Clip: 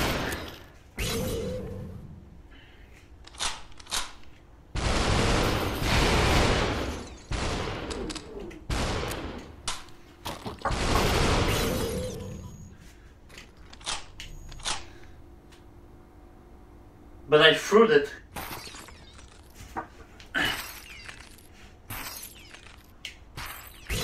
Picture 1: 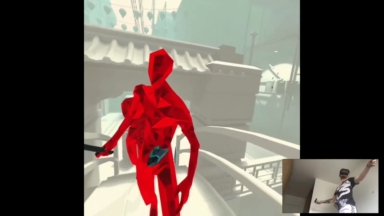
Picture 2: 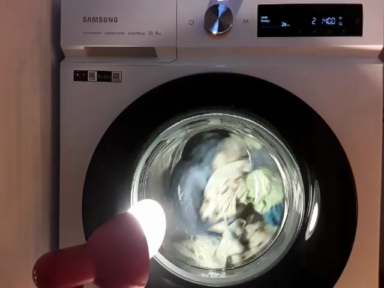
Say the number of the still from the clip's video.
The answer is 1